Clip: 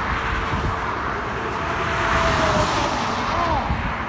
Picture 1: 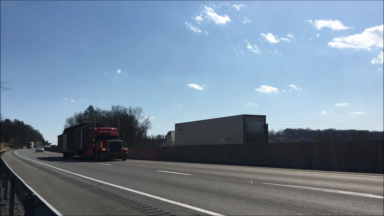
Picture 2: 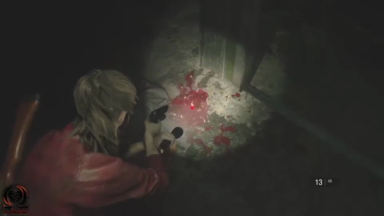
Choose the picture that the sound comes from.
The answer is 1